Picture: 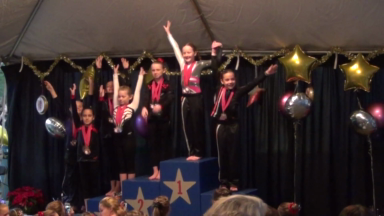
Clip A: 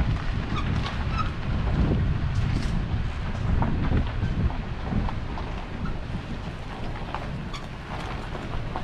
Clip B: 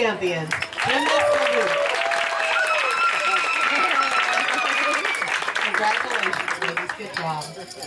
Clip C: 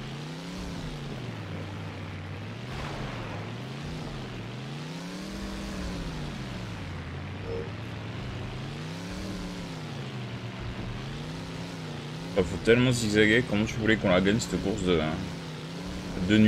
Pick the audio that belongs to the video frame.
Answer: B